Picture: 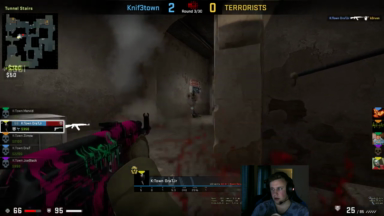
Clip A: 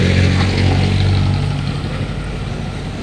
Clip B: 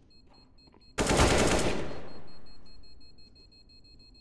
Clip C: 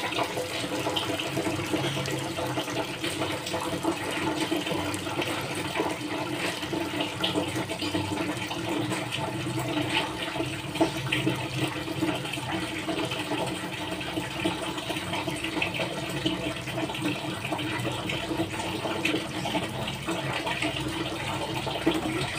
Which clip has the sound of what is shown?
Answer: B